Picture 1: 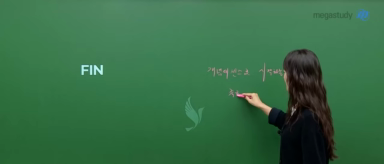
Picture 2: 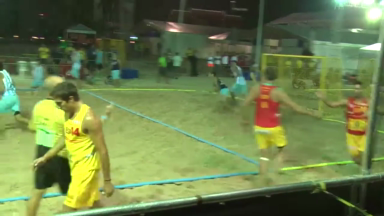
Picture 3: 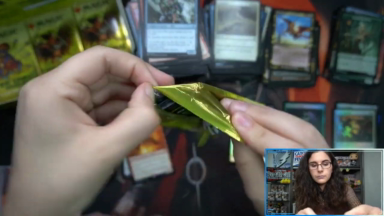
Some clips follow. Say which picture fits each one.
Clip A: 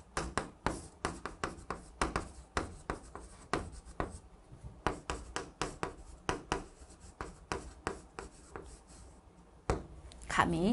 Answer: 1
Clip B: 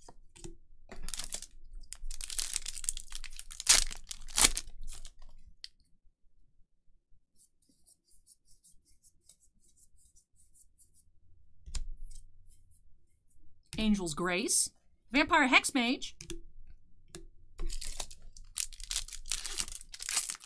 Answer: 3